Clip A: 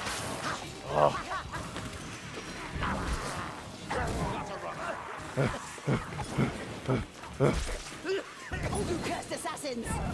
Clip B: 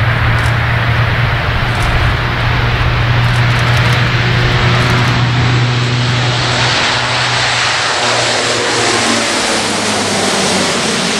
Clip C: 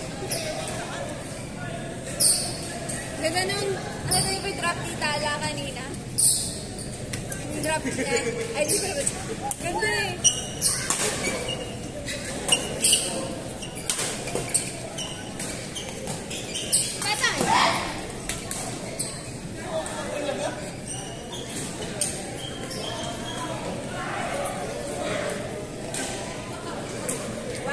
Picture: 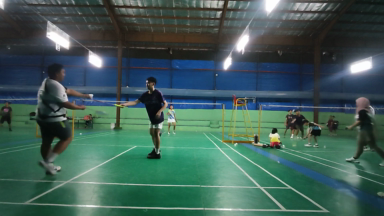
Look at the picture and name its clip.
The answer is C